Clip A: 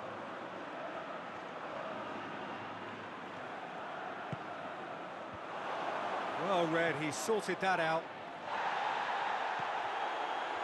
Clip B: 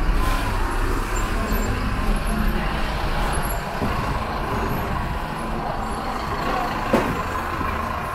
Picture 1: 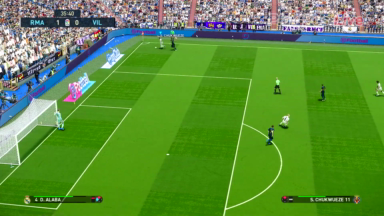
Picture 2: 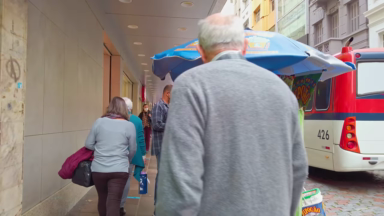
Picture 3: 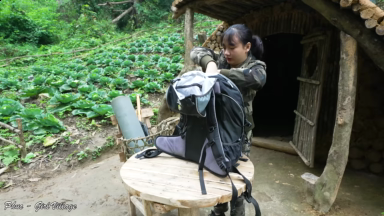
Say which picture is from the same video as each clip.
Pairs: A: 1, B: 2